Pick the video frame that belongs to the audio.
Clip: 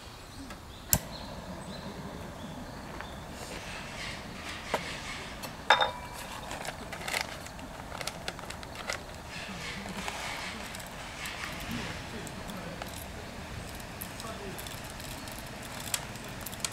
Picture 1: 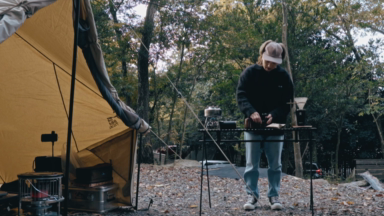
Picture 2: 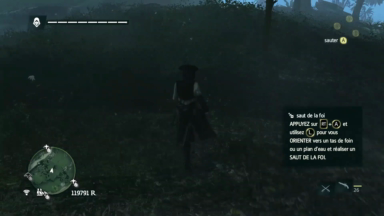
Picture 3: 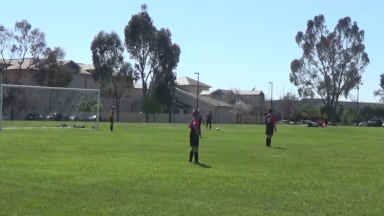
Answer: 1